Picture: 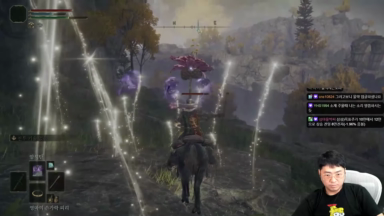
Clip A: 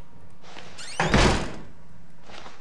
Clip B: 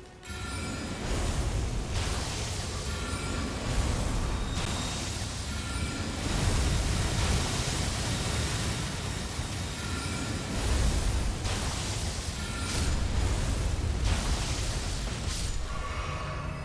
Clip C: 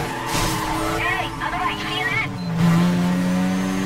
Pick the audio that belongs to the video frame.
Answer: B